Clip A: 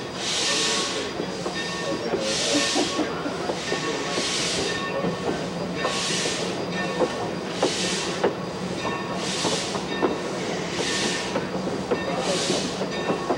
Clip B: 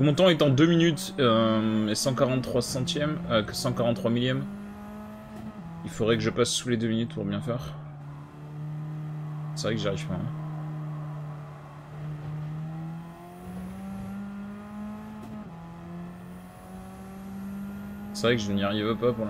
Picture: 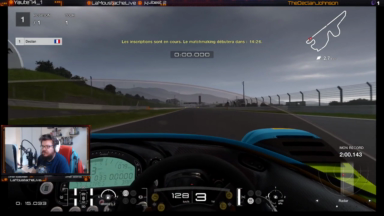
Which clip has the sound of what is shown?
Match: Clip B